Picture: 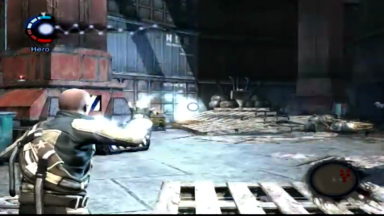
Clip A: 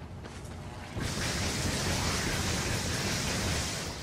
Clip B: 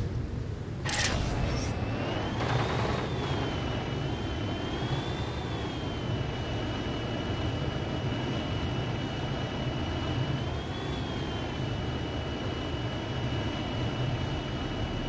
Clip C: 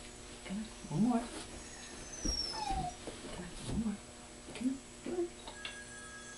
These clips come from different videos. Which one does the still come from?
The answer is A